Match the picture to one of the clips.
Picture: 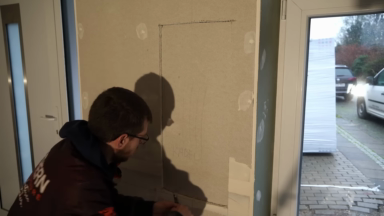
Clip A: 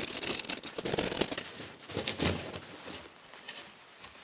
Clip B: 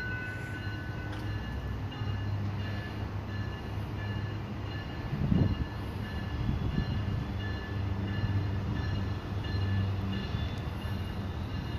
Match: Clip A